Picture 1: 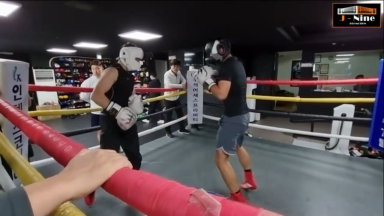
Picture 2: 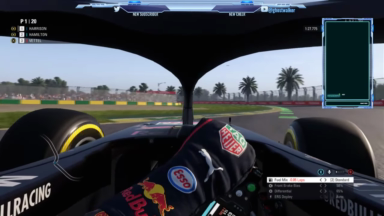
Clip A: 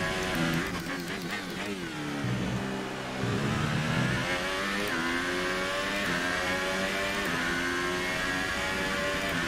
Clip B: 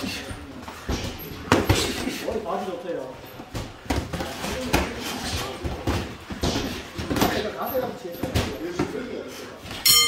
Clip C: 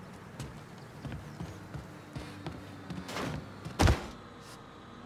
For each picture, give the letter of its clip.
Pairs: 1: B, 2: A